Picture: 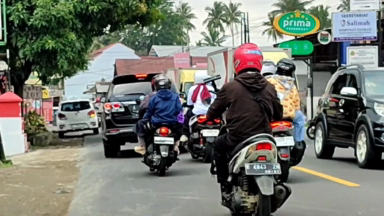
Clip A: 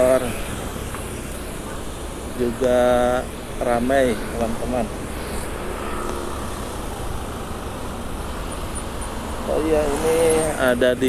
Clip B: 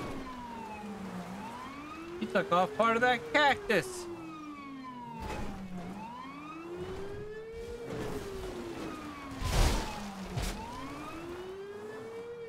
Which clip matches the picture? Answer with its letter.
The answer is A